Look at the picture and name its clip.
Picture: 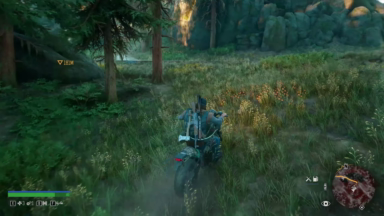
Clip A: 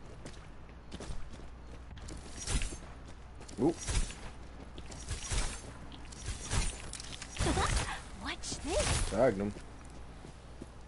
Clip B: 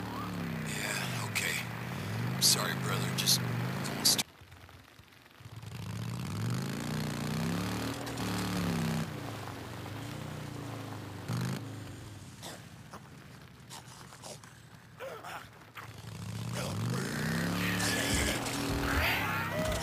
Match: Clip B